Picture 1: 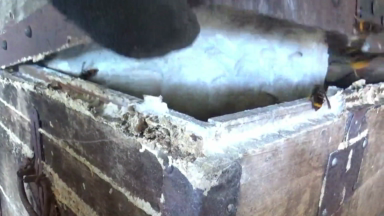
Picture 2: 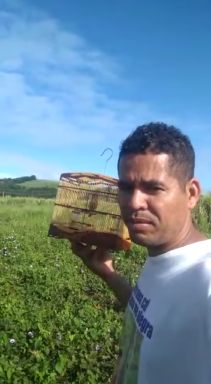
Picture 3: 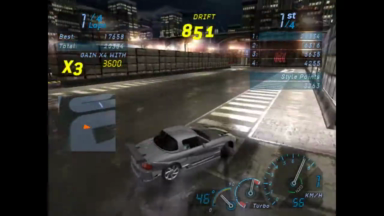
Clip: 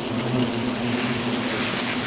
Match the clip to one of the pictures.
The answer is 1